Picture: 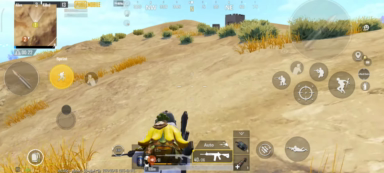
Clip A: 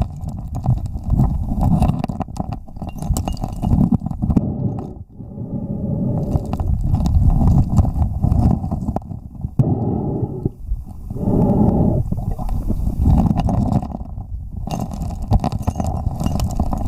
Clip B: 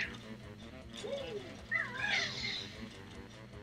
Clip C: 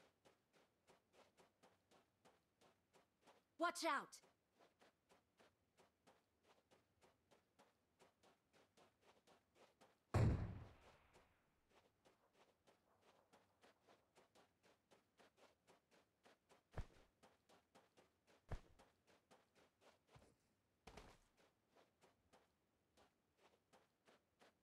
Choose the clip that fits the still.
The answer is C